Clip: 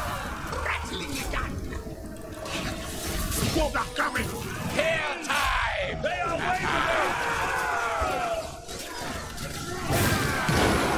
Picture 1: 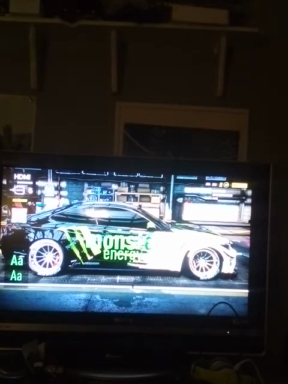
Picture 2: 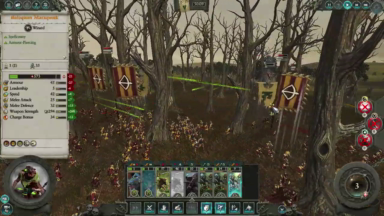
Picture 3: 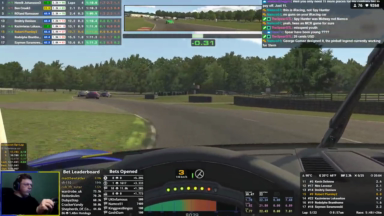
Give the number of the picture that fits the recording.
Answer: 2